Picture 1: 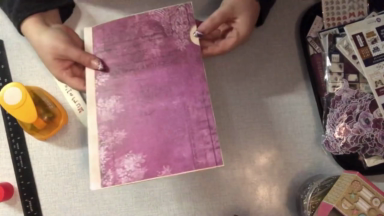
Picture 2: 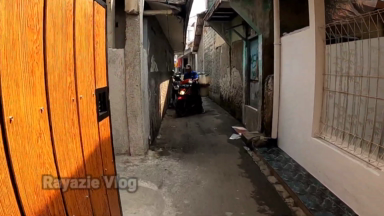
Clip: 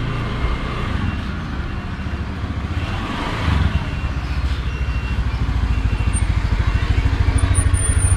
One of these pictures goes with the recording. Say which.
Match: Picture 2